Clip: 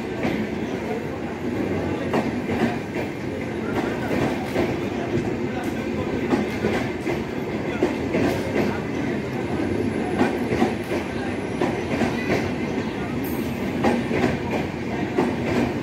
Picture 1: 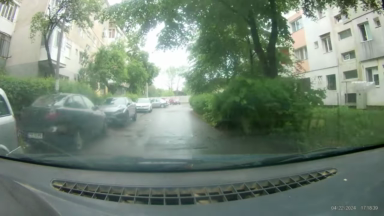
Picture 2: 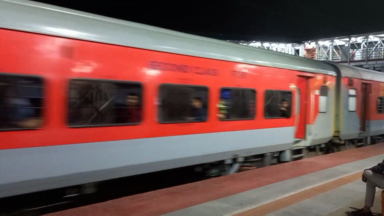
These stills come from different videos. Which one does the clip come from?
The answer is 2